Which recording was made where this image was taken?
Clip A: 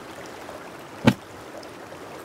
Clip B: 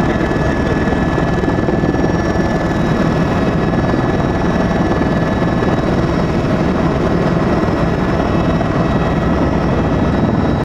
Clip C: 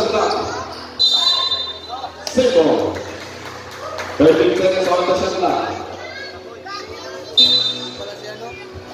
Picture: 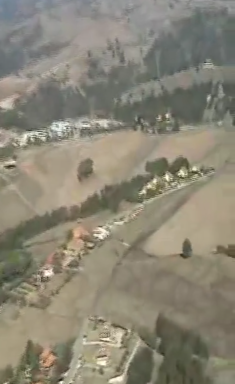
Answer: B